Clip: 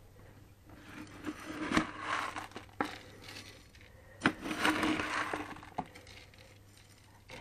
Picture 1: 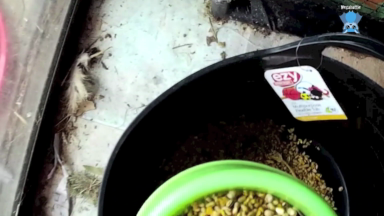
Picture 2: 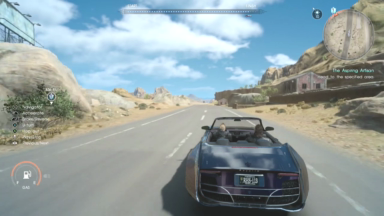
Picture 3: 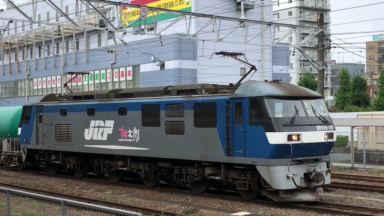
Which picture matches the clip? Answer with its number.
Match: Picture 1